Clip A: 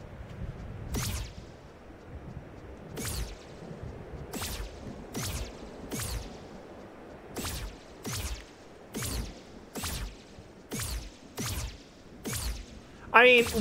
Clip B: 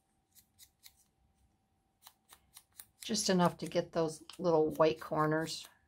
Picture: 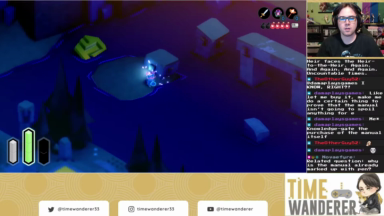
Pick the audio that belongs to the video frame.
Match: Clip A